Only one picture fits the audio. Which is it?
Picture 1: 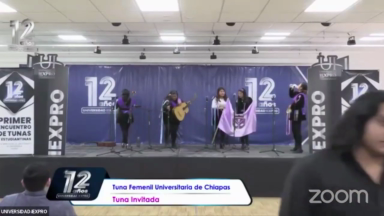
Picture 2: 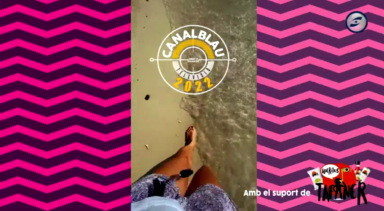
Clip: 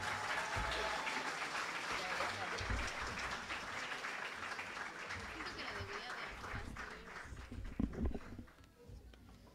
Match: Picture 1